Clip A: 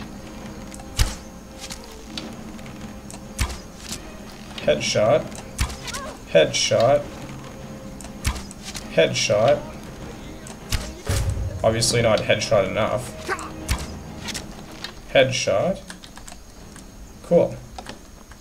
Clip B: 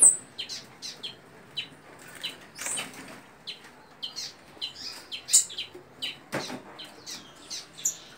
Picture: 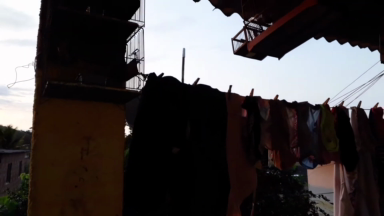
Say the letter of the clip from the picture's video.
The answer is B